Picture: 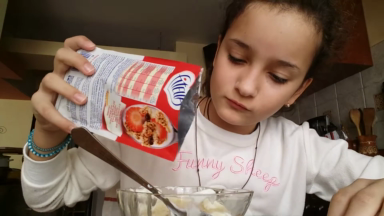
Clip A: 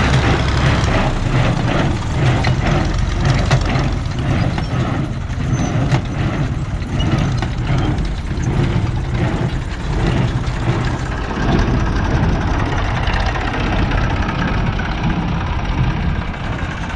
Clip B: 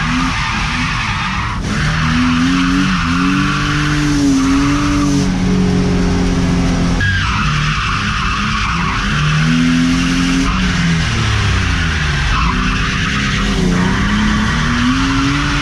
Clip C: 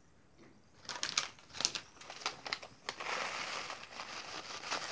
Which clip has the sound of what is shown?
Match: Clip C